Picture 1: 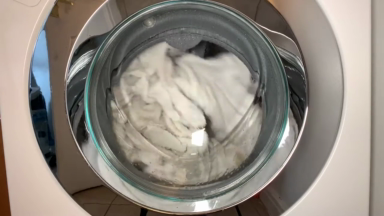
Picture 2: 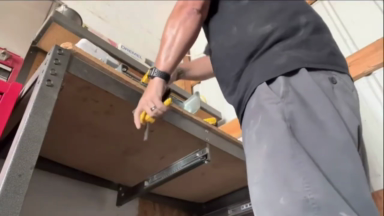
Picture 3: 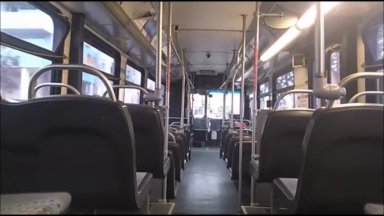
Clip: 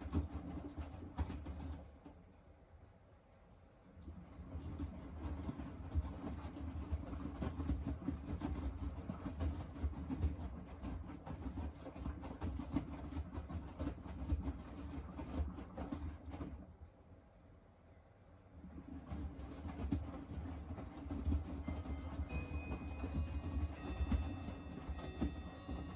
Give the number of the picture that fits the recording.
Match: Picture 1